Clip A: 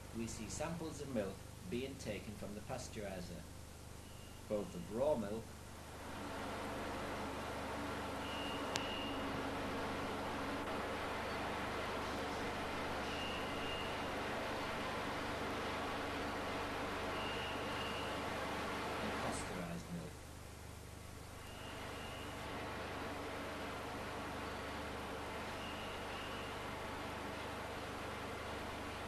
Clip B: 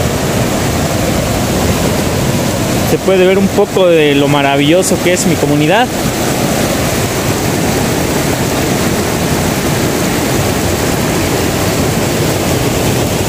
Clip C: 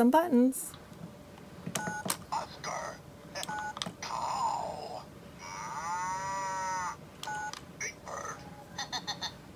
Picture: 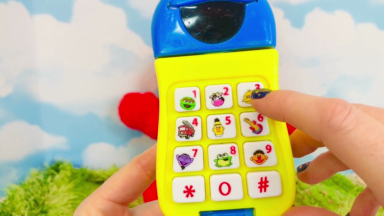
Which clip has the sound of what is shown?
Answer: C